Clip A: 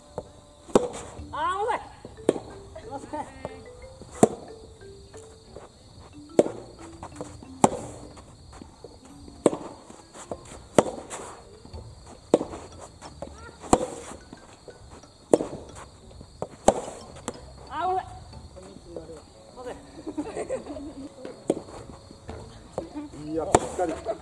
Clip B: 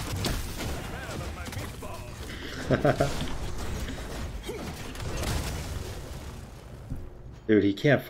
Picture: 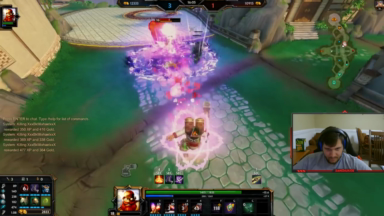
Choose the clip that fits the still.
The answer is B